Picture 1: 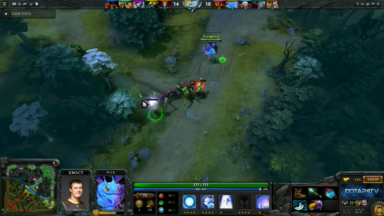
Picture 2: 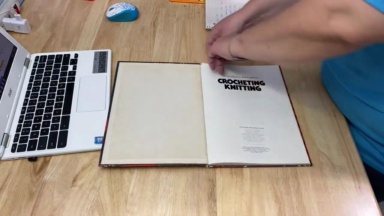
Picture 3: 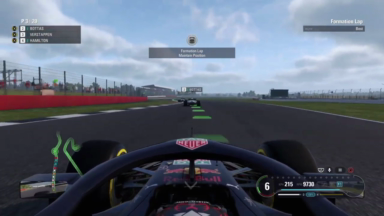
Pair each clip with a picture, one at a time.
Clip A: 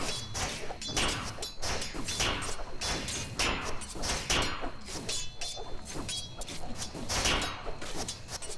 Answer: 1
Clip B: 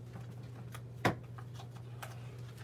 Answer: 2